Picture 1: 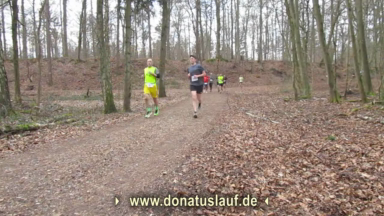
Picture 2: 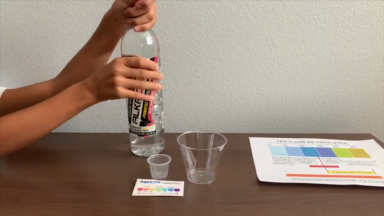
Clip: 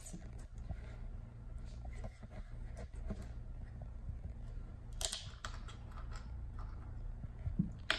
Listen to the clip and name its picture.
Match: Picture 2